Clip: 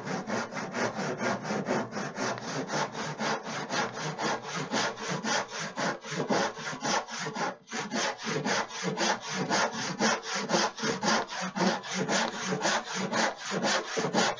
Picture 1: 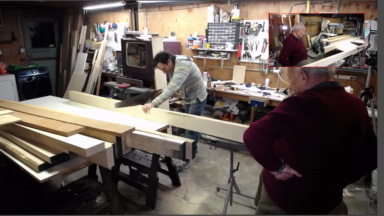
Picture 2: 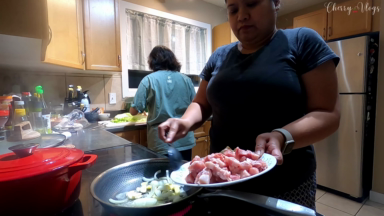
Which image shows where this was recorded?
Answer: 1